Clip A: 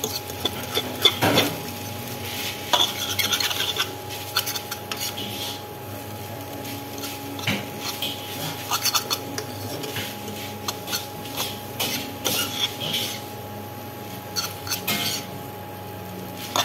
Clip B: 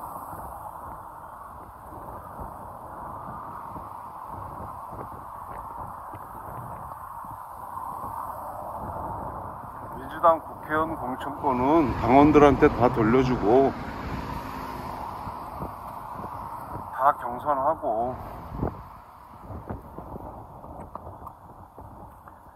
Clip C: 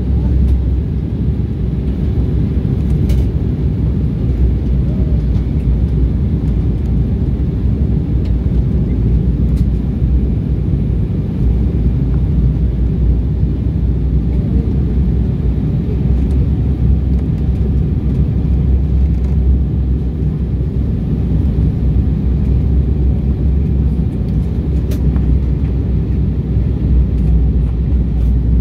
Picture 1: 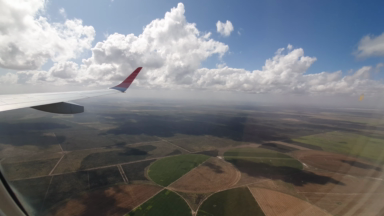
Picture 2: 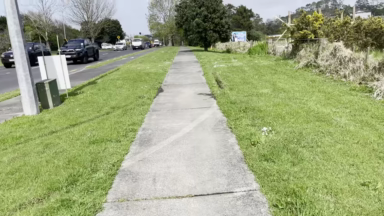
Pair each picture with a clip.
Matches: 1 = C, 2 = B